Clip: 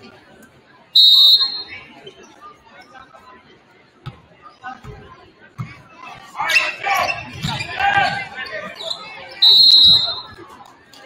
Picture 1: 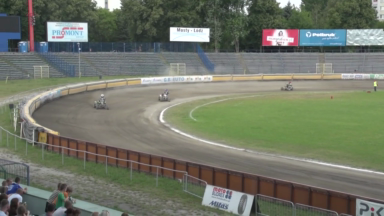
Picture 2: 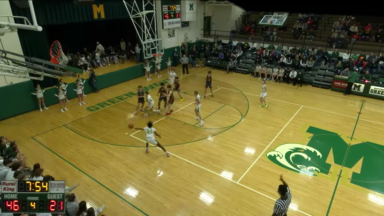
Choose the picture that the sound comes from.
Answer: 2